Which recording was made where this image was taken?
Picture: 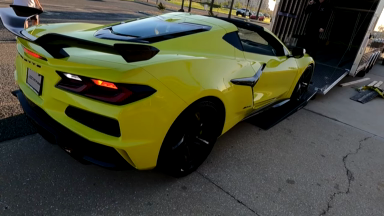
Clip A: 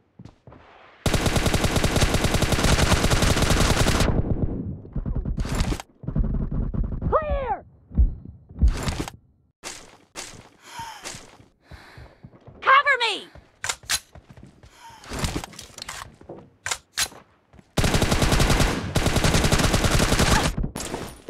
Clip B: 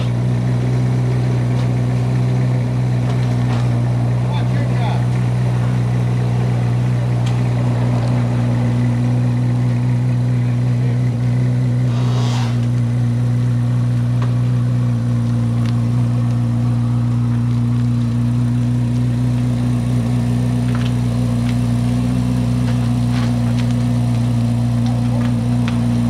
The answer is B